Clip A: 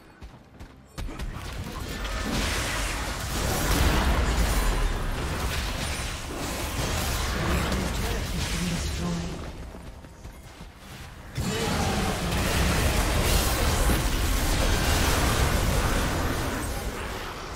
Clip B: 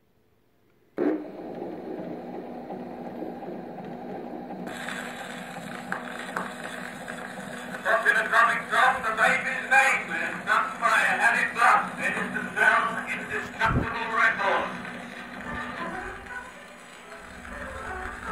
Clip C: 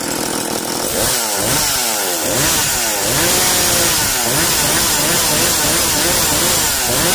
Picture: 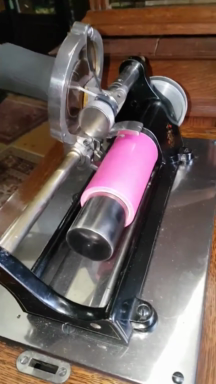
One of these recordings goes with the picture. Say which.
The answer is B